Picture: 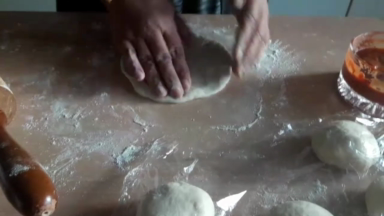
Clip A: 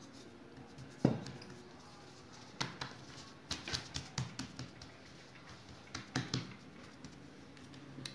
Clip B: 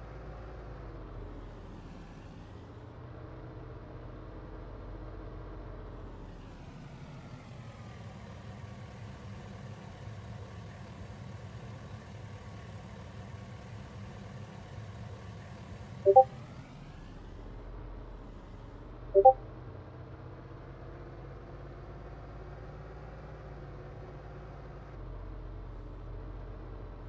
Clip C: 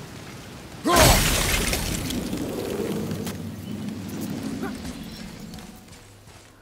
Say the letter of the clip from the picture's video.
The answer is A